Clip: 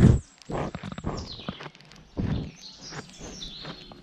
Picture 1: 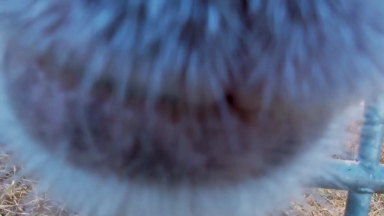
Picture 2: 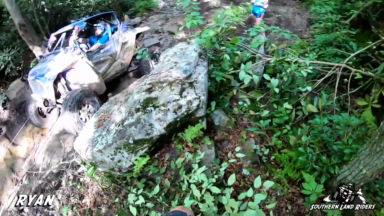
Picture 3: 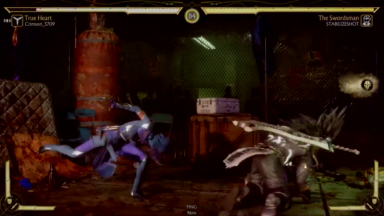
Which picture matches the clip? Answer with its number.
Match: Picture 1